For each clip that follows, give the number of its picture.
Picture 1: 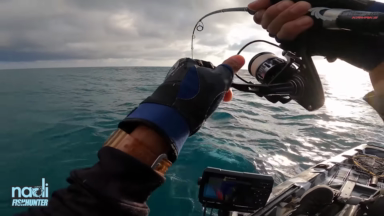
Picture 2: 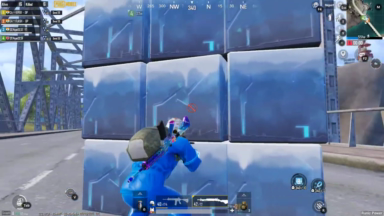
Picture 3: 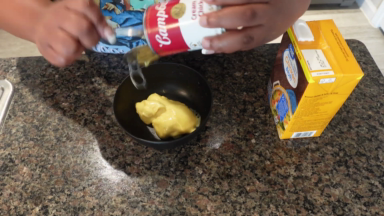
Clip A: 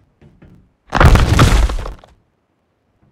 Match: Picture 2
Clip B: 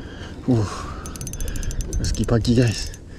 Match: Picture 1